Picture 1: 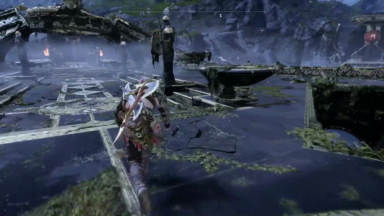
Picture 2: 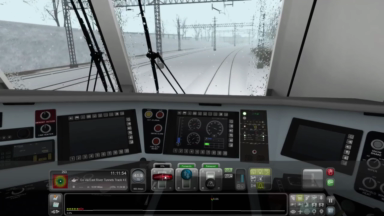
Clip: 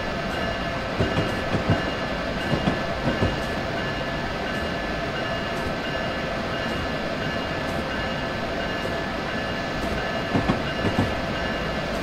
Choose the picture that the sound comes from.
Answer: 2